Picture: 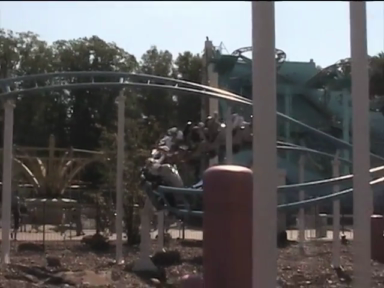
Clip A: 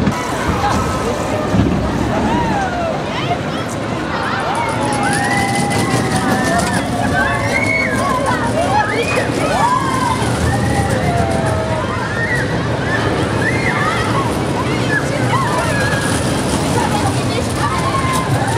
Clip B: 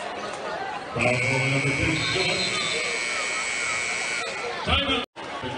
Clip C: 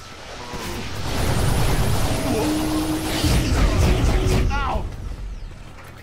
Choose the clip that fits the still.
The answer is A